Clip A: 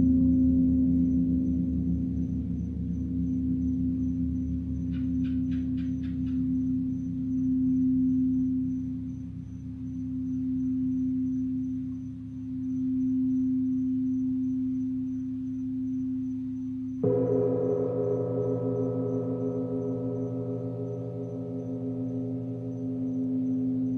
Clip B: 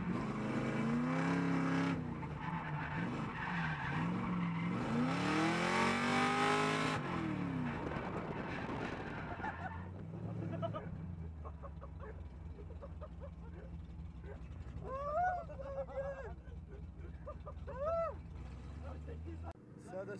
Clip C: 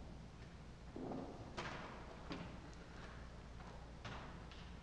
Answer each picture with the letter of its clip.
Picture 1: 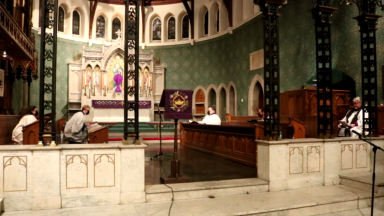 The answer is C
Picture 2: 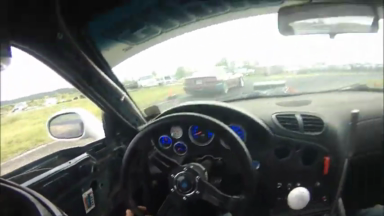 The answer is B